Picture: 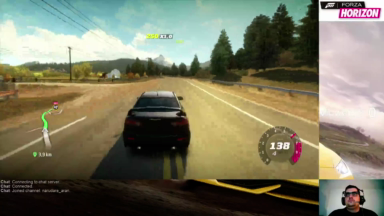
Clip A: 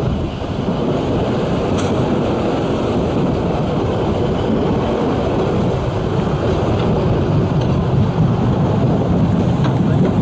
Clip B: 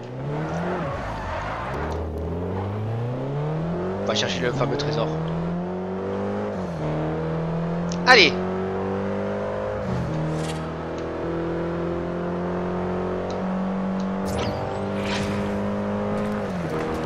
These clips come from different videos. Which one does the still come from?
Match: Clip B